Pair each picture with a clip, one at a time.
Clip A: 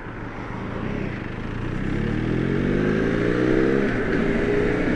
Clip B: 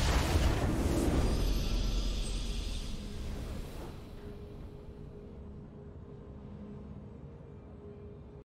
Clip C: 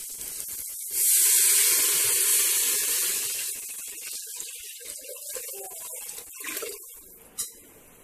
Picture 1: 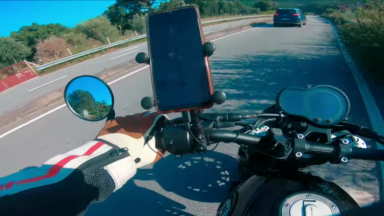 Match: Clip A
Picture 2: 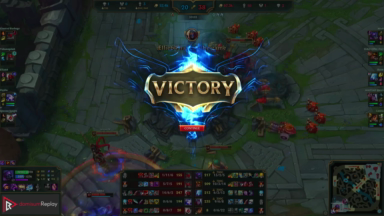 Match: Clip B